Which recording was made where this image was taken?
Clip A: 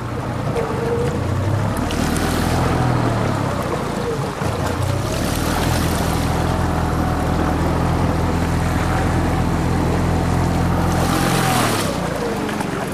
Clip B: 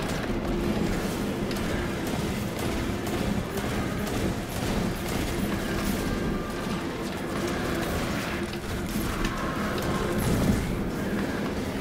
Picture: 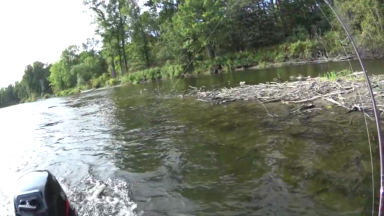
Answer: A